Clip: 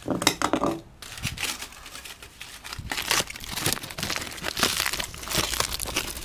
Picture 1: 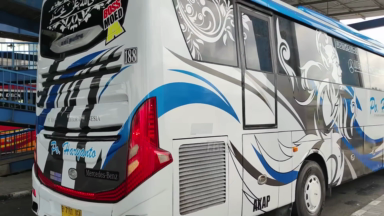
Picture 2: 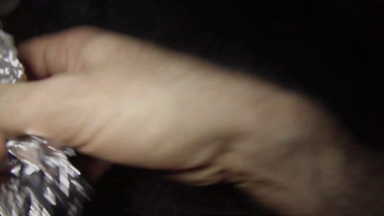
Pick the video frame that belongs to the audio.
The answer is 2